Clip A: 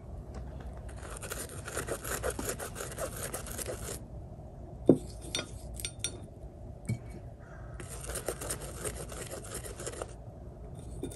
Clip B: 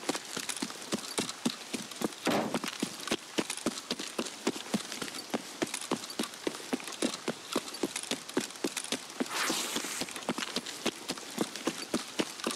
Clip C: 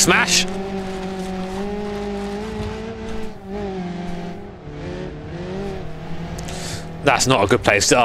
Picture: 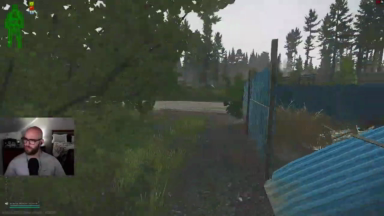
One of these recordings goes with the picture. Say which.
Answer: B